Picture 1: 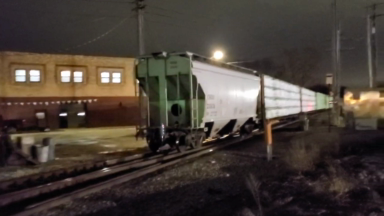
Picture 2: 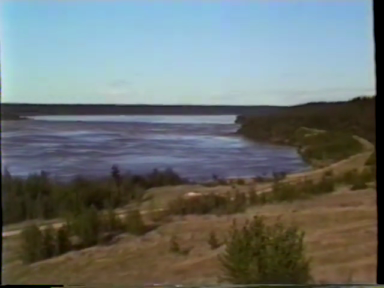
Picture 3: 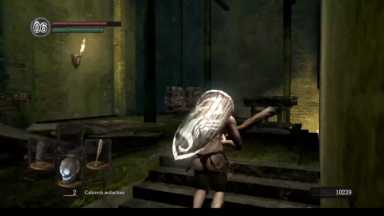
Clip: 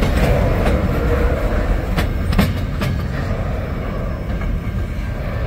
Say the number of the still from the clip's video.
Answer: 1